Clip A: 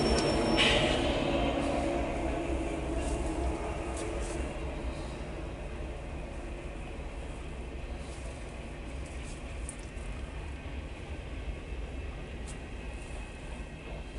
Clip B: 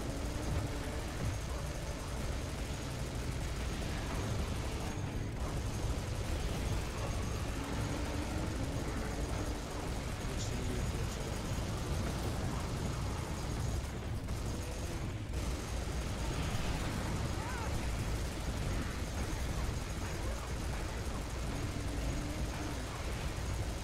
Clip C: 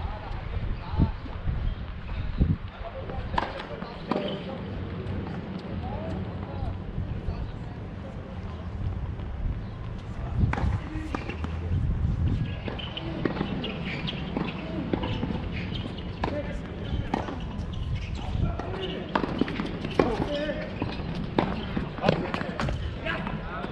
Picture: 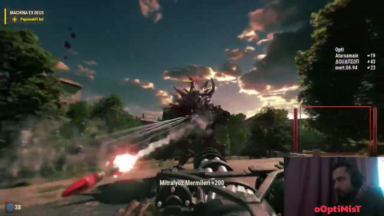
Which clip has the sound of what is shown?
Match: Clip B